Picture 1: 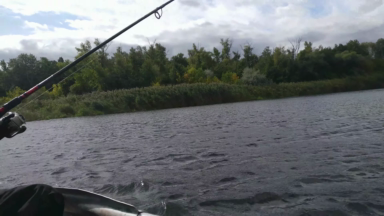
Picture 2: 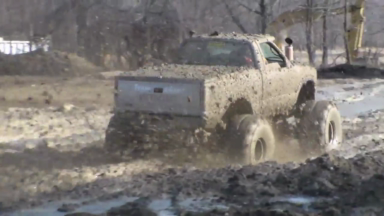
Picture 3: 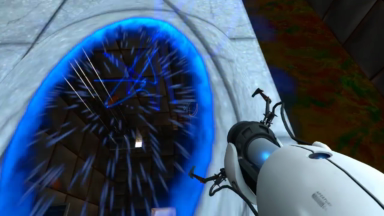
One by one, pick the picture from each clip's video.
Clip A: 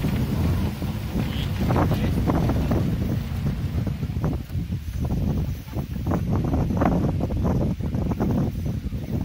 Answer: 1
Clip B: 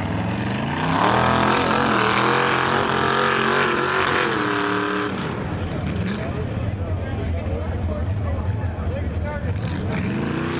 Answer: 2